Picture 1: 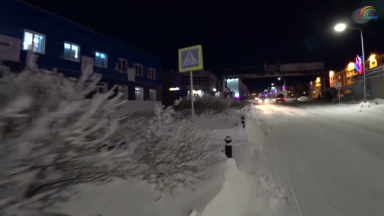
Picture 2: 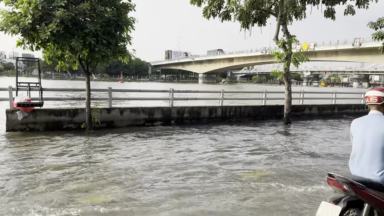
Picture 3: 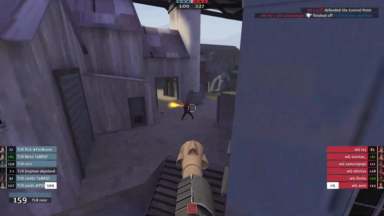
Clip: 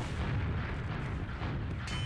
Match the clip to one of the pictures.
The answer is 3